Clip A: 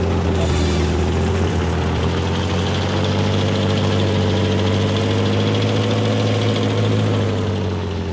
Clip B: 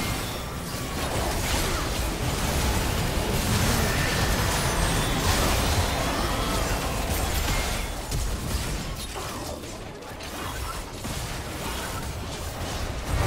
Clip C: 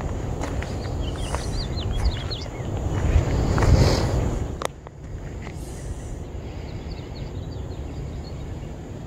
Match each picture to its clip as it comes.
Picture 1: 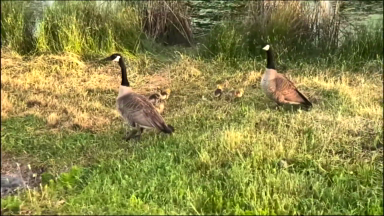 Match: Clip C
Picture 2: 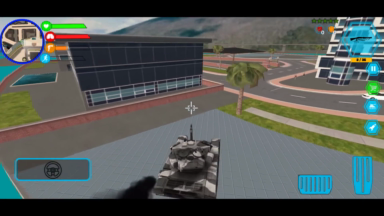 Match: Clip A